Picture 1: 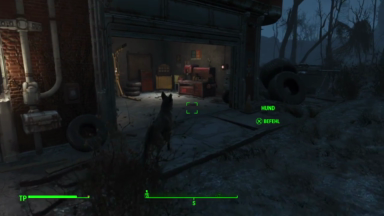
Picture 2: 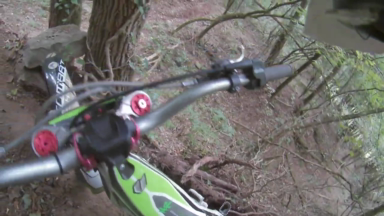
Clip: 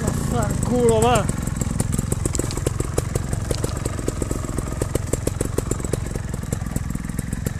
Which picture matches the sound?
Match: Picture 2